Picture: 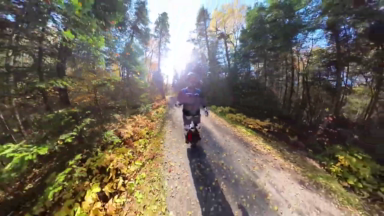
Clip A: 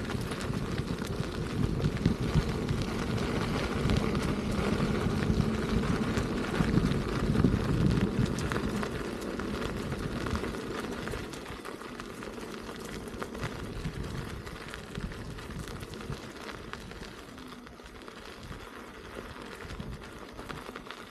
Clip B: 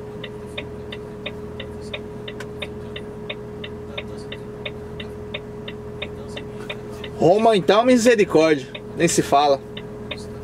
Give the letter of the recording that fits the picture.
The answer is A